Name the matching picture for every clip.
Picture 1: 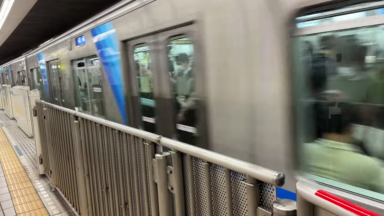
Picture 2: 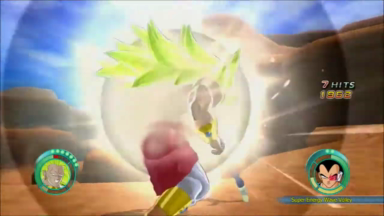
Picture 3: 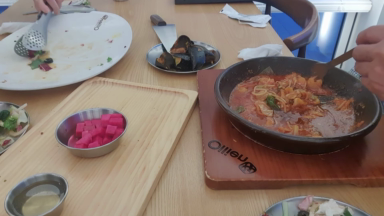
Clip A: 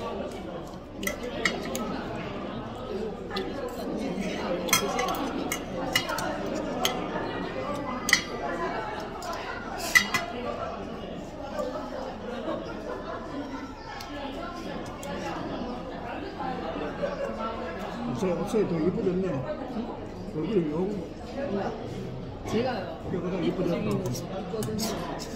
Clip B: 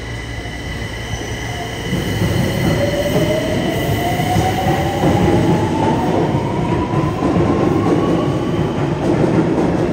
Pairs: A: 3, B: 1